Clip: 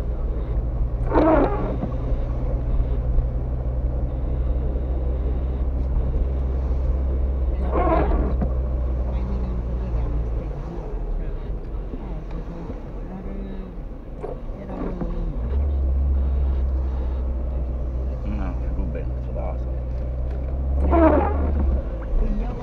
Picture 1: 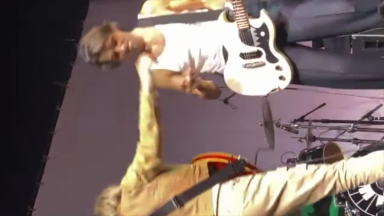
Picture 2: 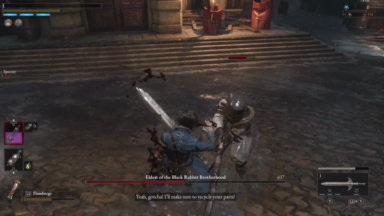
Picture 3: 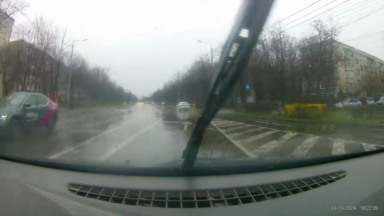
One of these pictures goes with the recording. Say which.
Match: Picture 3